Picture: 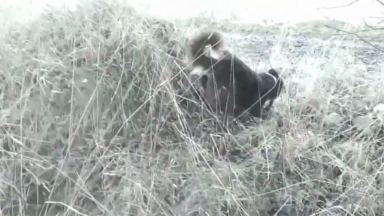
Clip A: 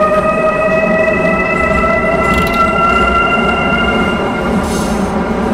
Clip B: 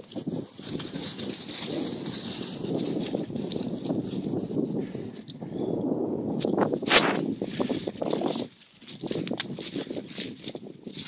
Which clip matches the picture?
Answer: B